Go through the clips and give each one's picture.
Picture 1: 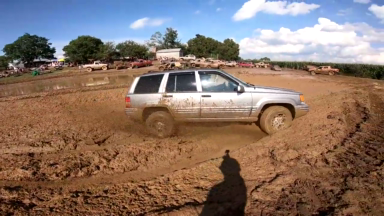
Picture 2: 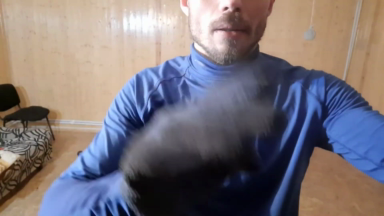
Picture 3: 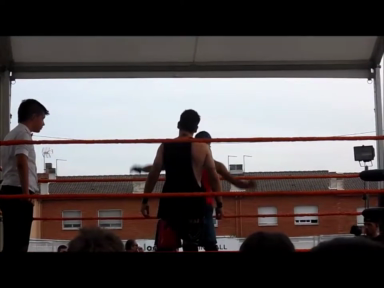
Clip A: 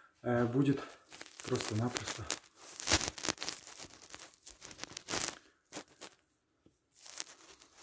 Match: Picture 2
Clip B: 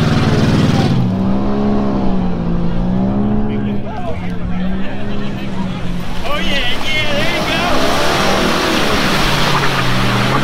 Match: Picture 1